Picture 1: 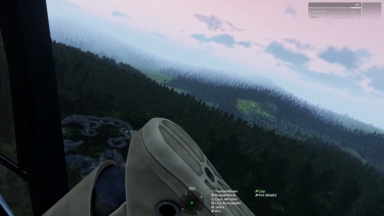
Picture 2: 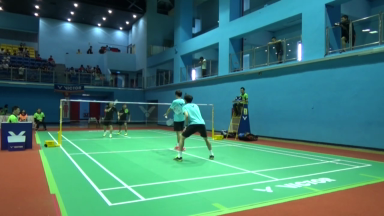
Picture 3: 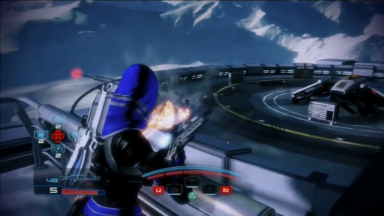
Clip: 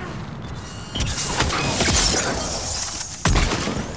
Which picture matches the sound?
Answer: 3